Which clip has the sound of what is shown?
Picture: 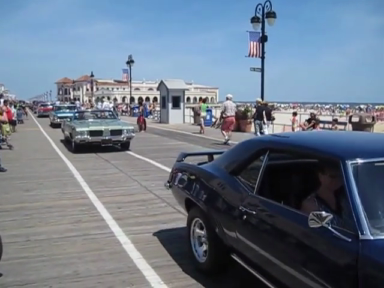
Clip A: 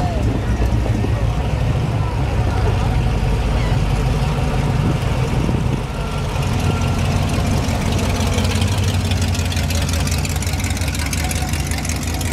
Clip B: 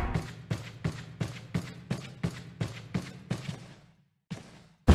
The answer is A